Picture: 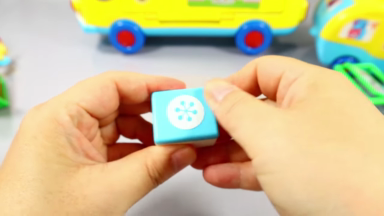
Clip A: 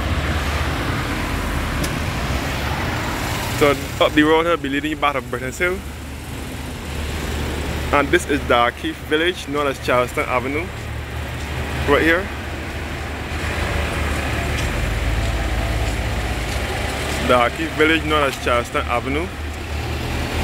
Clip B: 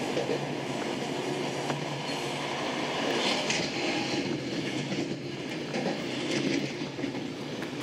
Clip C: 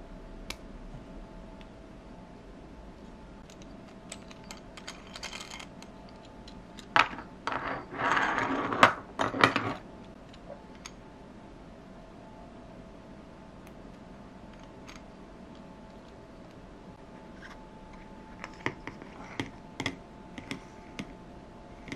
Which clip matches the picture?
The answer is C